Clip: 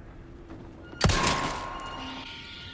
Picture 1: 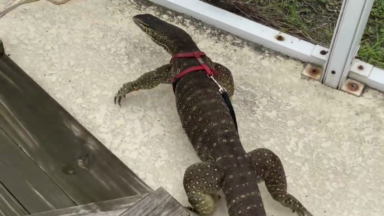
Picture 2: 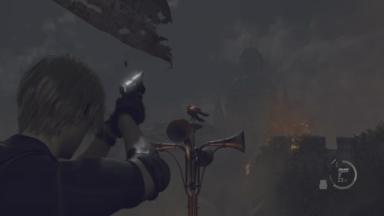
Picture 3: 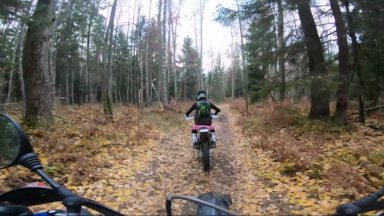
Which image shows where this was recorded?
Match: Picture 2